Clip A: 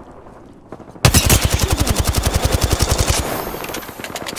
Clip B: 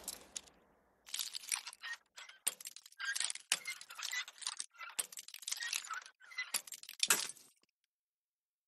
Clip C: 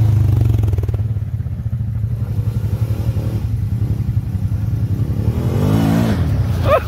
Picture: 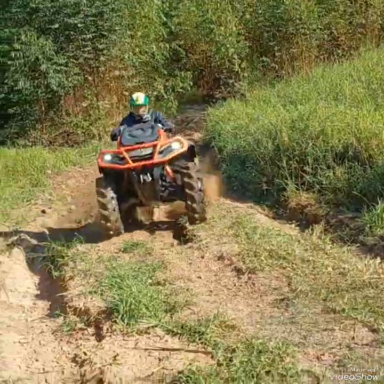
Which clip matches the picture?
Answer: C